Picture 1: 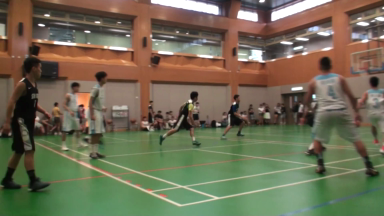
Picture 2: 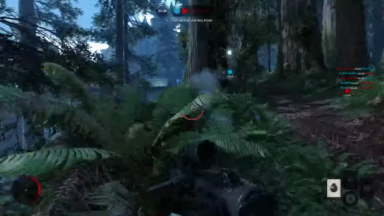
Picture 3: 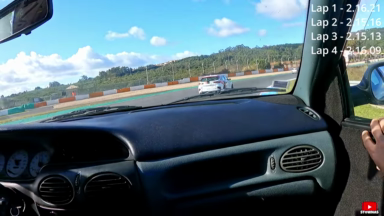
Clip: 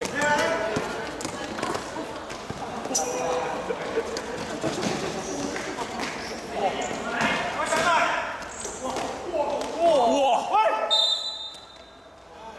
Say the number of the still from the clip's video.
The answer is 1